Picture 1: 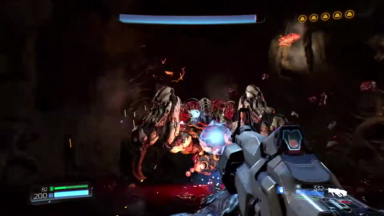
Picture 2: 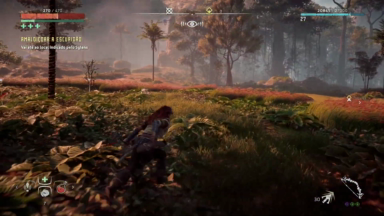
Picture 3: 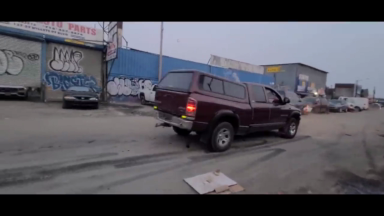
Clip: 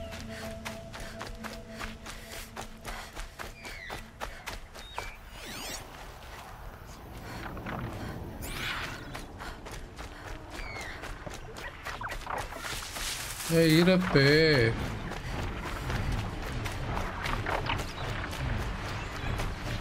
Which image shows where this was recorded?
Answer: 2